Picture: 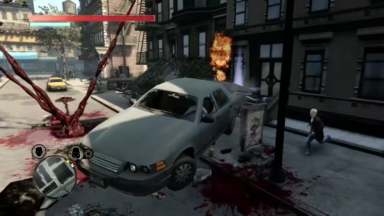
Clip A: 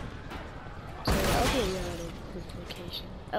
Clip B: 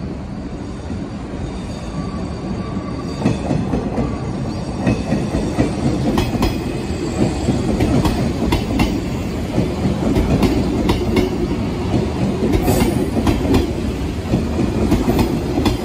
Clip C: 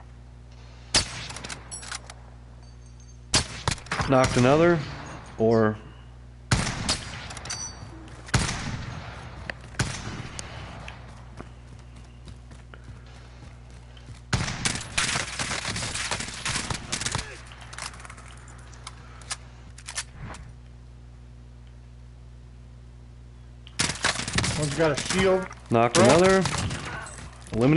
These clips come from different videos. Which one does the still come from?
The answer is A